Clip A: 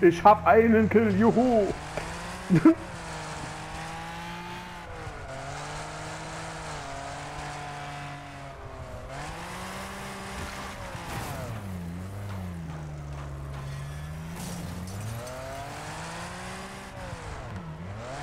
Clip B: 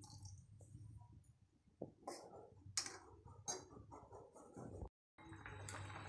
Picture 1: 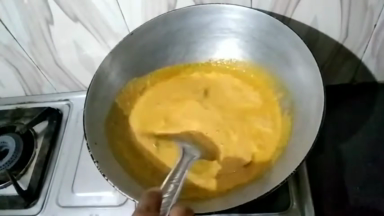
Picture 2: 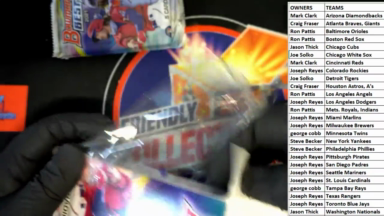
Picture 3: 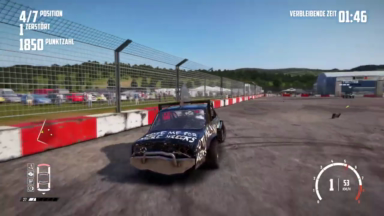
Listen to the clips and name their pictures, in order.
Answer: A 3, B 1